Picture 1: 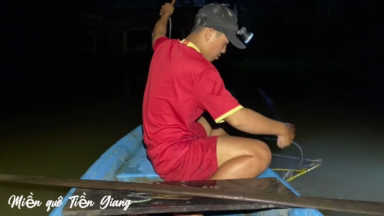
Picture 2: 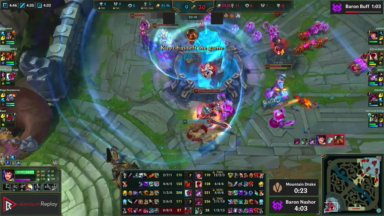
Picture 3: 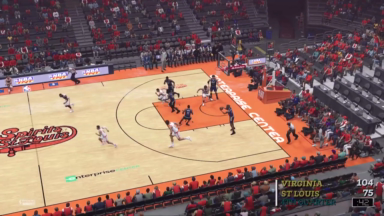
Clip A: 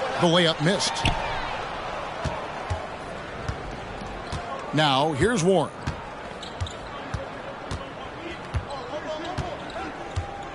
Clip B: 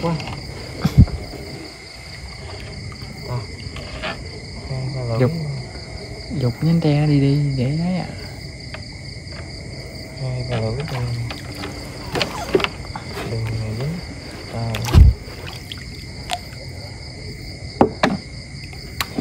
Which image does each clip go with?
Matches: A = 3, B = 1